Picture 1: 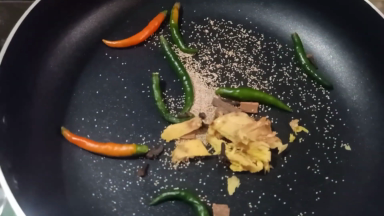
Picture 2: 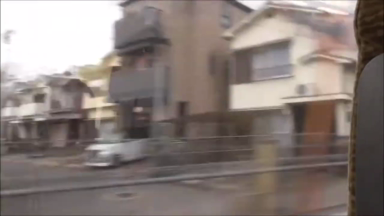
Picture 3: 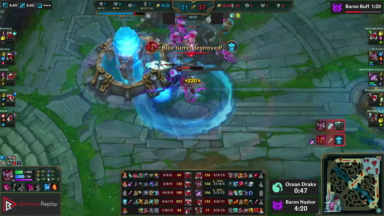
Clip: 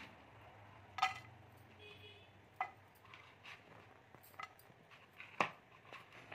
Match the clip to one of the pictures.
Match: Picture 1